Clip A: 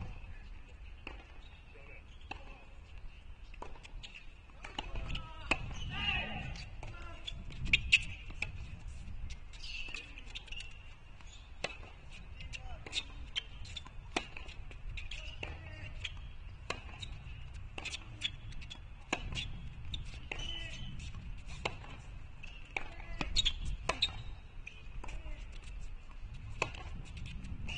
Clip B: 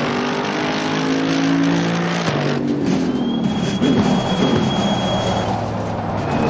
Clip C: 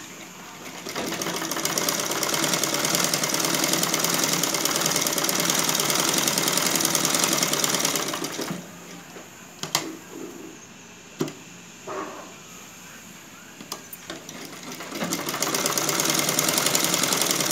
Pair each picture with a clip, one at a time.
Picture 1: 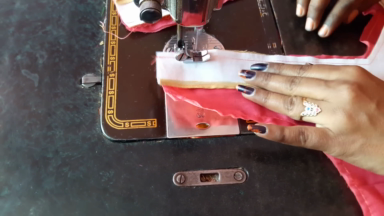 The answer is C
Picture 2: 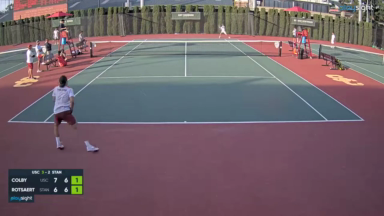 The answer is A